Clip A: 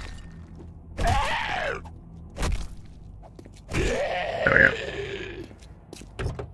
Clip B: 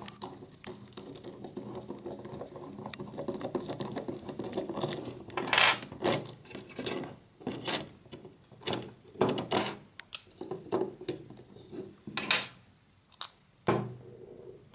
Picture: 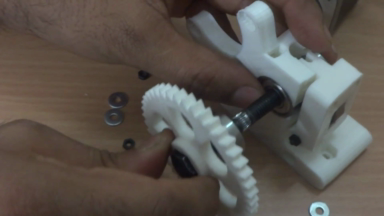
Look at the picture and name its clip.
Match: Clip B